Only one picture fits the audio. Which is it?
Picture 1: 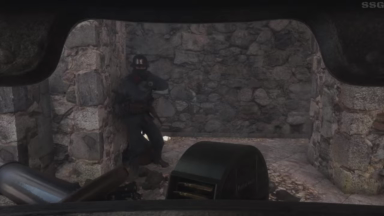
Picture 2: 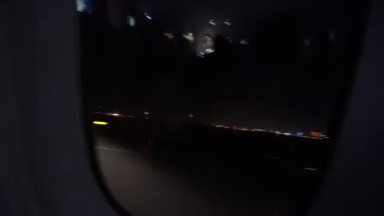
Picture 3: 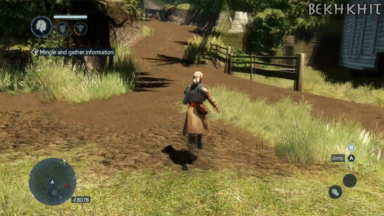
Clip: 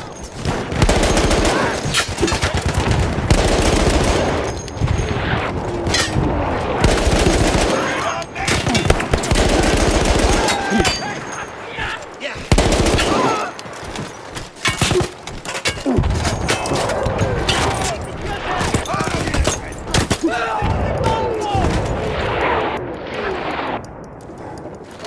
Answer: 1